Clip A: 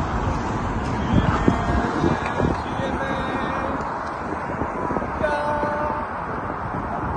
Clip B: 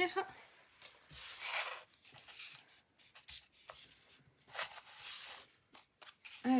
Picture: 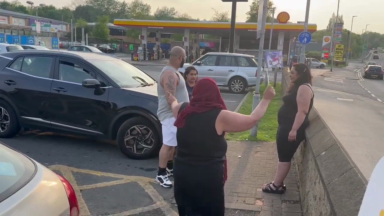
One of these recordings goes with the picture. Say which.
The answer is A